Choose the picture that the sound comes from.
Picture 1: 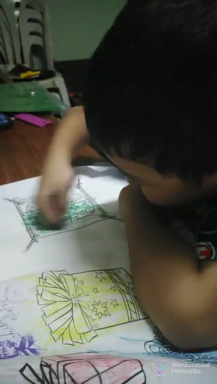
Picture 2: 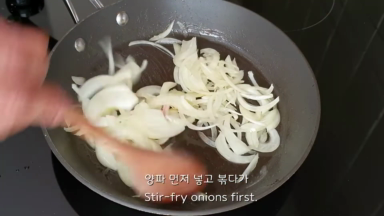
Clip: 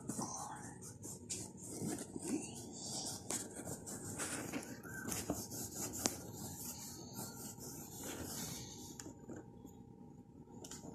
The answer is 1